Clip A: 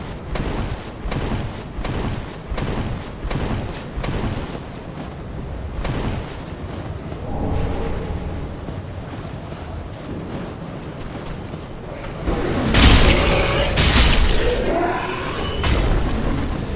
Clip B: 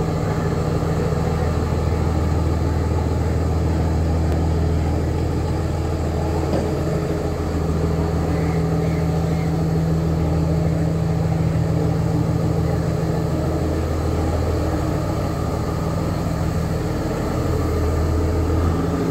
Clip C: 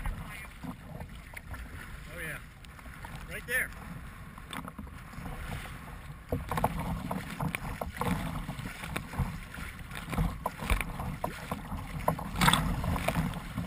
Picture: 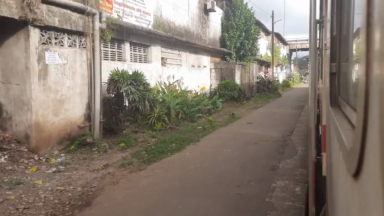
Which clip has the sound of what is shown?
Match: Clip B